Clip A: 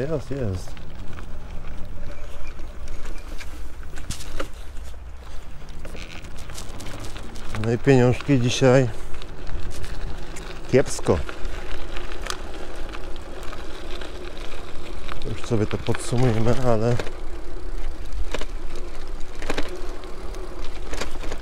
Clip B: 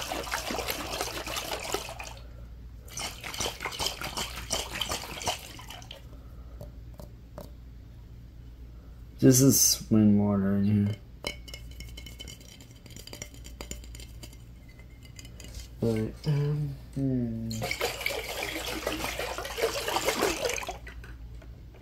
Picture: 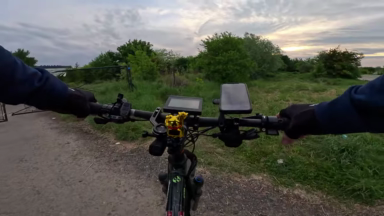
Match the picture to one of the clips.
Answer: A